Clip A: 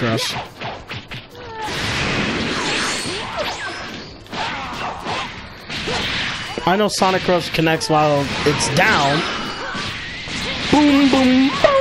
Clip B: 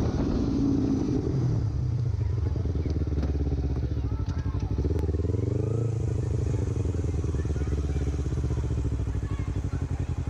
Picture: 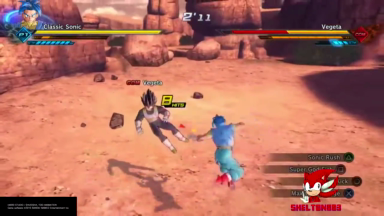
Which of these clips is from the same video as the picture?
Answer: A